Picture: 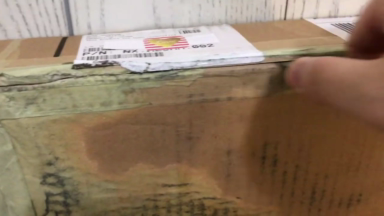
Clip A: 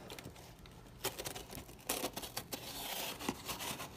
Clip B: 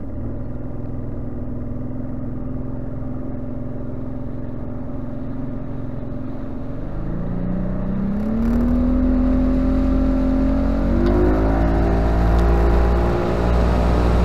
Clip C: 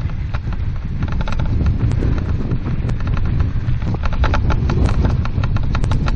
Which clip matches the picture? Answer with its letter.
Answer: A